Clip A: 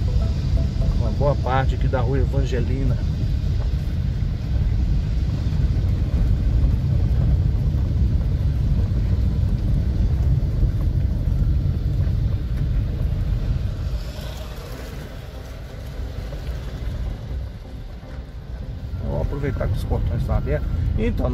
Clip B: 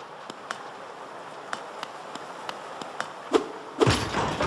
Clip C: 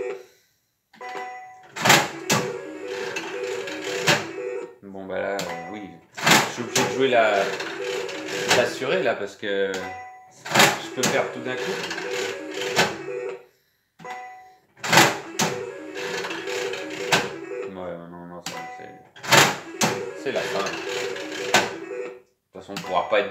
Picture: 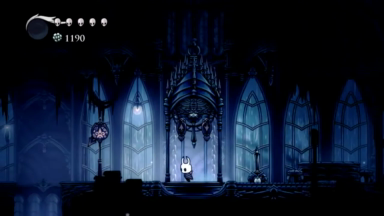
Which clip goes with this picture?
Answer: B